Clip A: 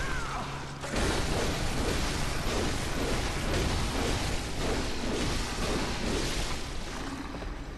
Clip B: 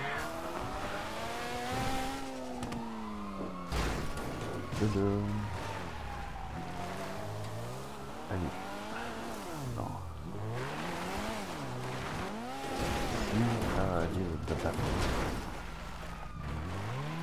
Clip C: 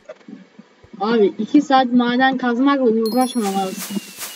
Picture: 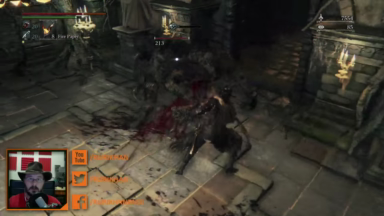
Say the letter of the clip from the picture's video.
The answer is A